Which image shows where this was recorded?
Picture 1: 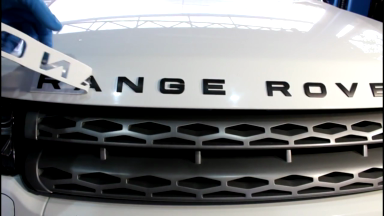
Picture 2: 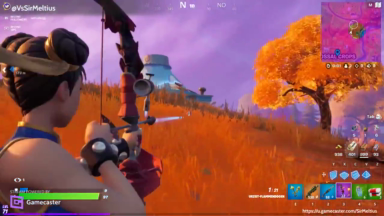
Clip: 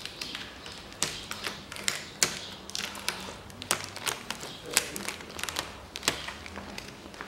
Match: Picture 1